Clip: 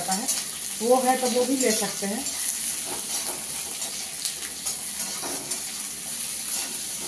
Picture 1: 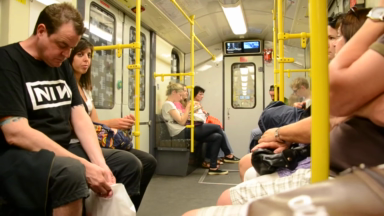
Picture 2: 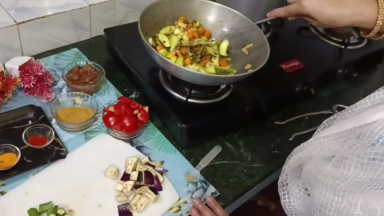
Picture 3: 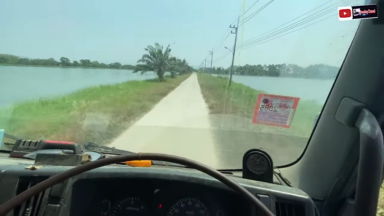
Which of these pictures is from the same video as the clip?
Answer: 2